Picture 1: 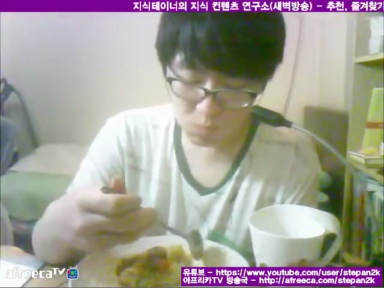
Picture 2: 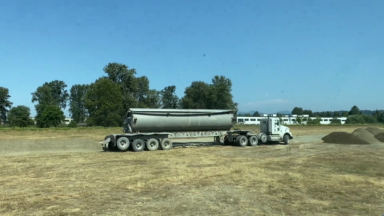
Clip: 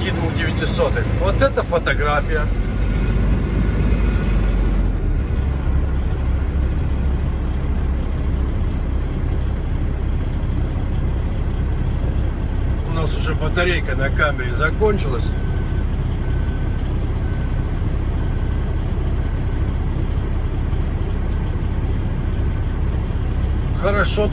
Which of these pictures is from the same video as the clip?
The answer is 2